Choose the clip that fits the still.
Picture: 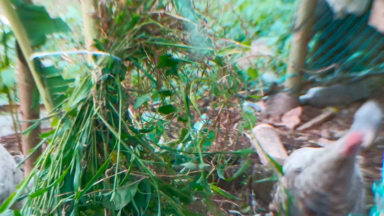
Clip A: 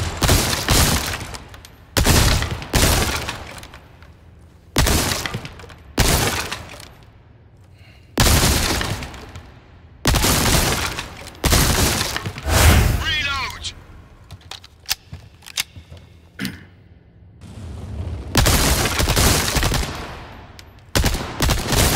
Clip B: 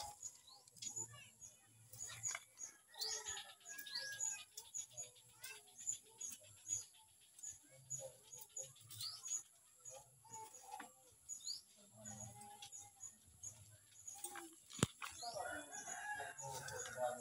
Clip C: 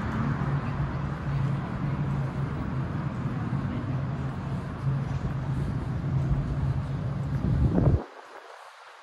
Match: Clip B